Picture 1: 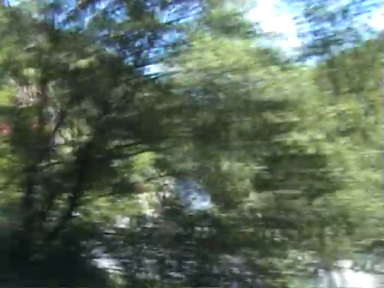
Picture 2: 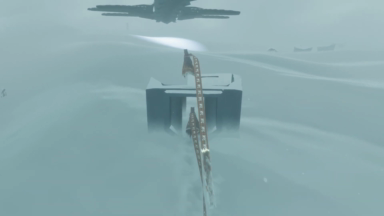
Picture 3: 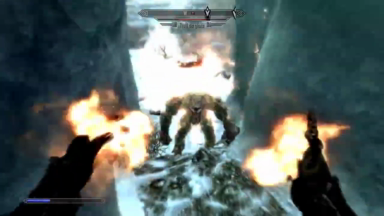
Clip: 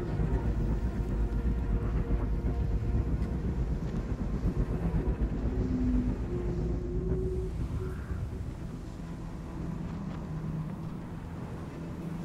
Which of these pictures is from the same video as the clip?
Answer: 2